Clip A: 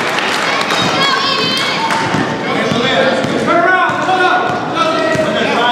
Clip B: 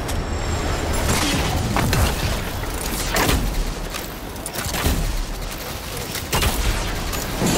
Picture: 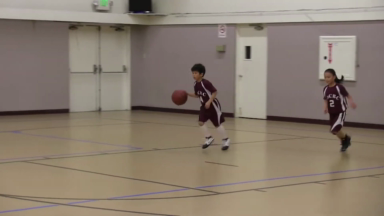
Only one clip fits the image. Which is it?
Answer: A